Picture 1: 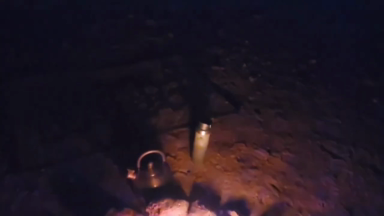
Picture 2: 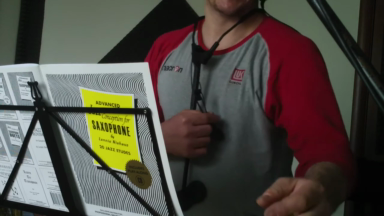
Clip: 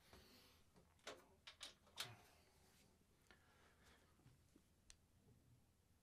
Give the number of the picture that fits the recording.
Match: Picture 2